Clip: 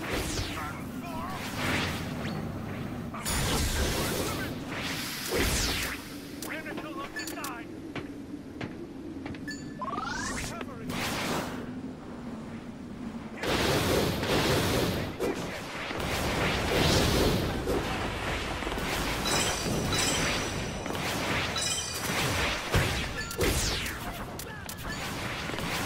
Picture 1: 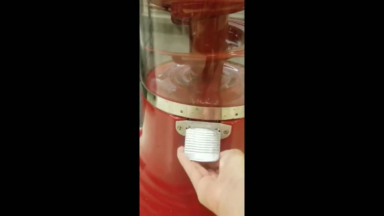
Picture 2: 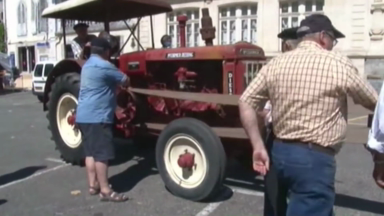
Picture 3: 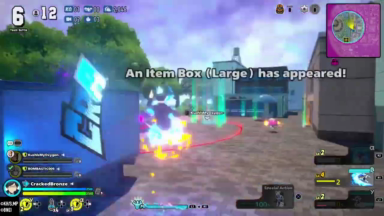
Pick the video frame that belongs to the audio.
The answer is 3